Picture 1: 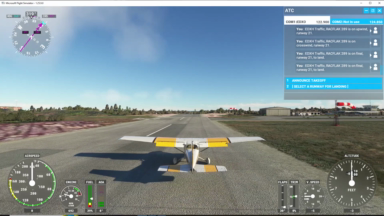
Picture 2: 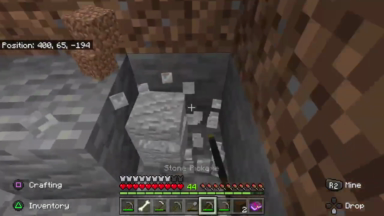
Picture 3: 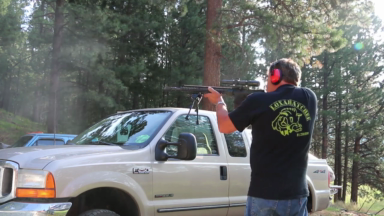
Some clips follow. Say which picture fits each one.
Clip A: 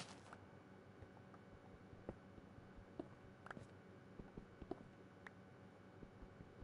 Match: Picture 2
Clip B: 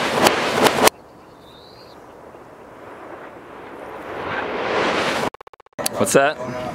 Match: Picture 3